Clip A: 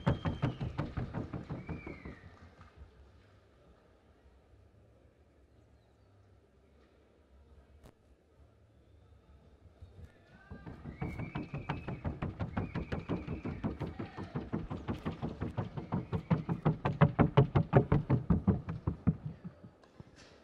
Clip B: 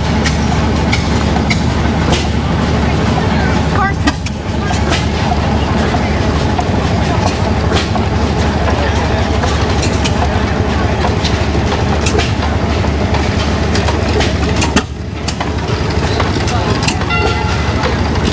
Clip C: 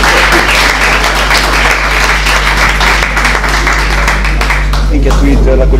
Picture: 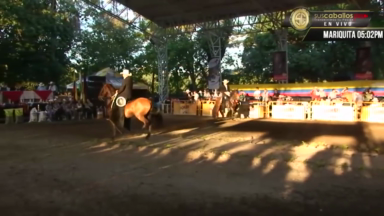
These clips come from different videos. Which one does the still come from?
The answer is A